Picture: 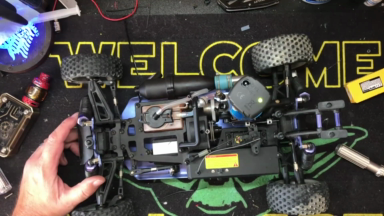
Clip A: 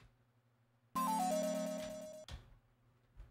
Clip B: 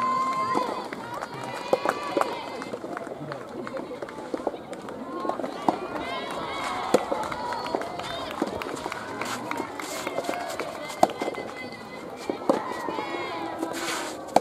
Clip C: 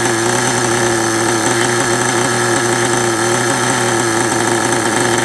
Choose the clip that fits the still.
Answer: C